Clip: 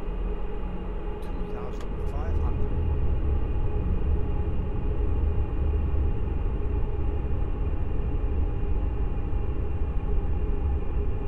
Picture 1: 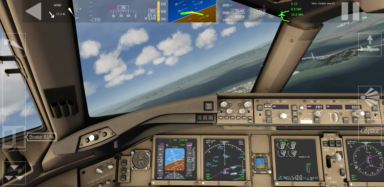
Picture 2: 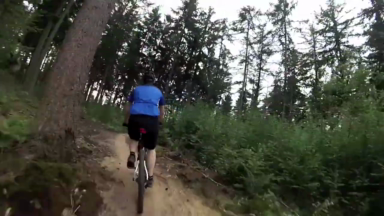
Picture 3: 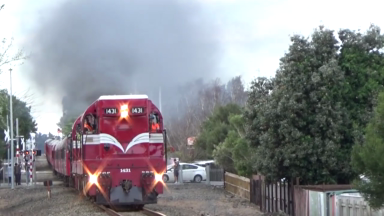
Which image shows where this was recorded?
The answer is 1